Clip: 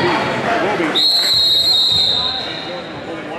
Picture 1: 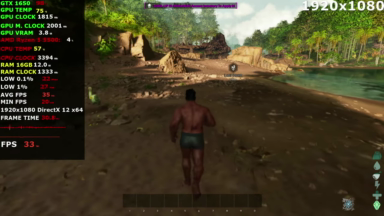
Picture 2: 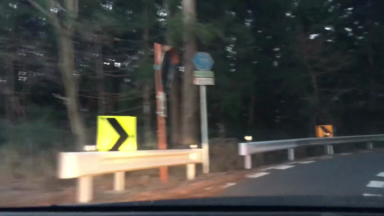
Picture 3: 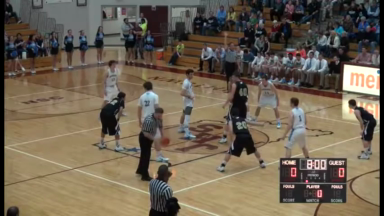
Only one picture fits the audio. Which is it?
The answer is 3